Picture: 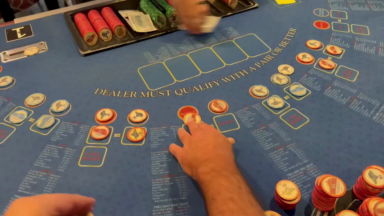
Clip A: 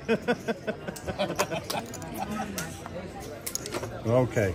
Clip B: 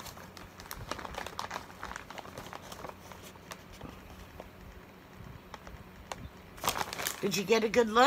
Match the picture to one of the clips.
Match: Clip A